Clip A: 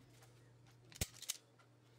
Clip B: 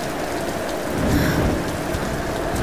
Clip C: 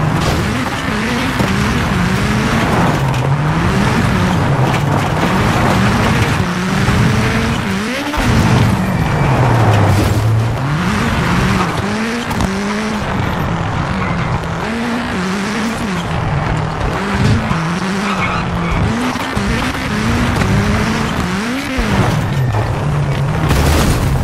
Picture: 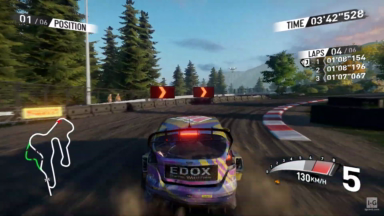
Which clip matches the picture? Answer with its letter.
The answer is C